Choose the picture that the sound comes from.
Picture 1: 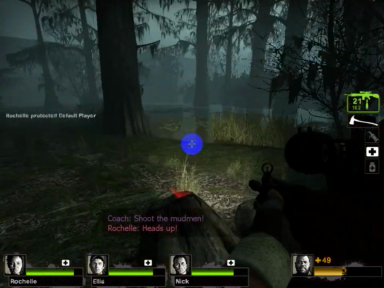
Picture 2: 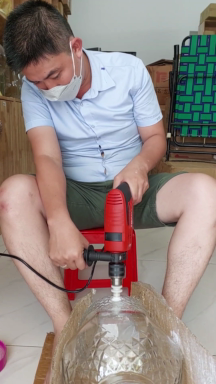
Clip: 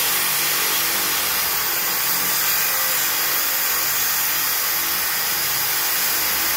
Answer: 2